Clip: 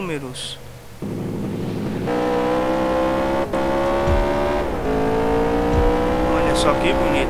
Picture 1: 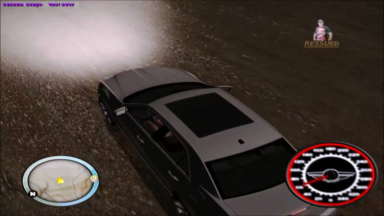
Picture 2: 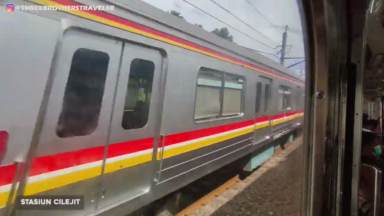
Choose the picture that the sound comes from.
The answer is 1